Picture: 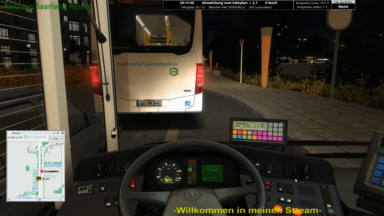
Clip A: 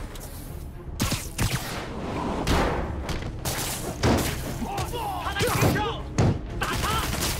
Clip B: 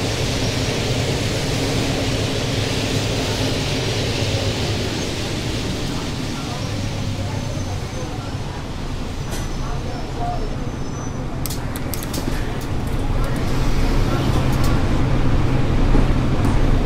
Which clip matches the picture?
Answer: B